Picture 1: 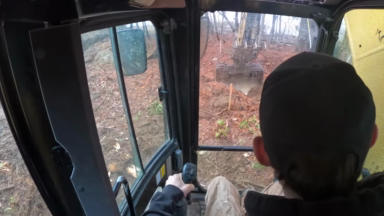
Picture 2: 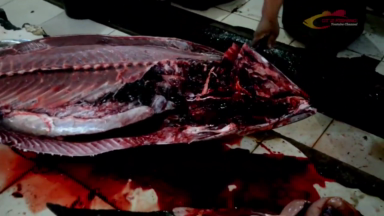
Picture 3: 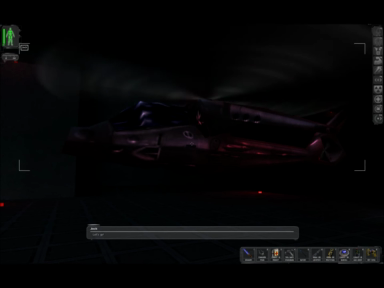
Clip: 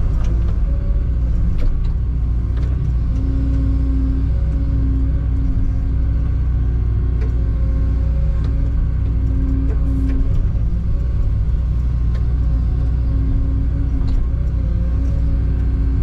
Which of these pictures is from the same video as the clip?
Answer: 1